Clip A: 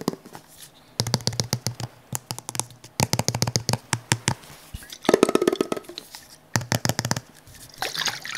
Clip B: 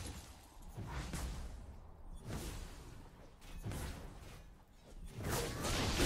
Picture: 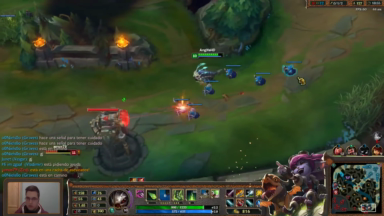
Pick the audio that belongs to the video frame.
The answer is B